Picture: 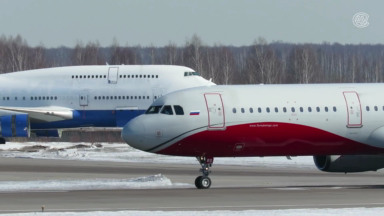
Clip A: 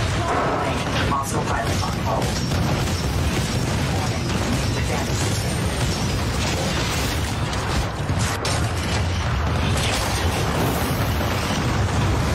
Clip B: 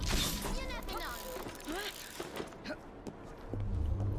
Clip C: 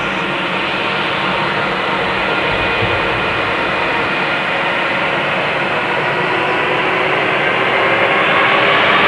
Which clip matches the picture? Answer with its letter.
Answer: C